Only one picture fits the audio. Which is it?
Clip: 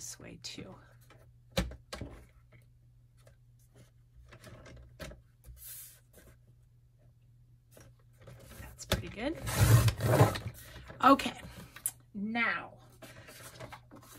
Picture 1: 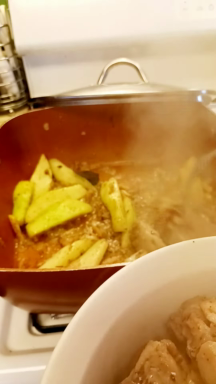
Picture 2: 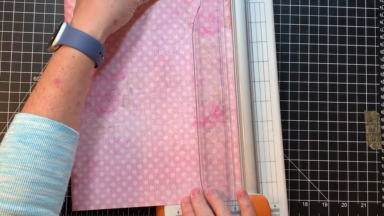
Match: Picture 2